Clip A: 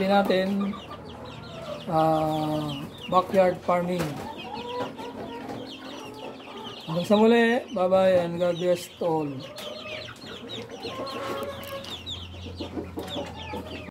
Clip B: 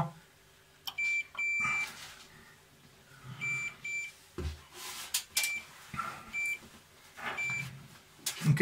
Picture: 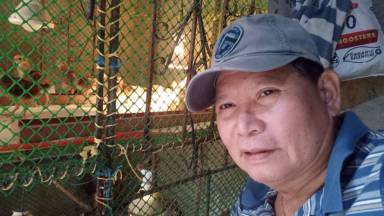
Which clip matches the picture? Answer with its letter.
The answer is A